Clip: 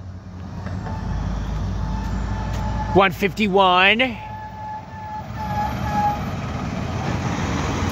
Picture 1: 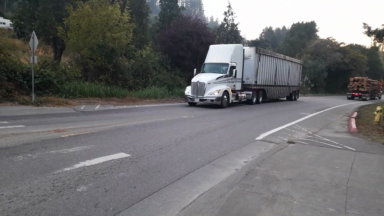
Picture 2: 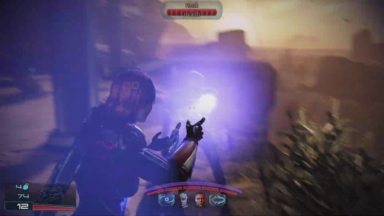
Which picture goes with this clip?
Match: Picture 1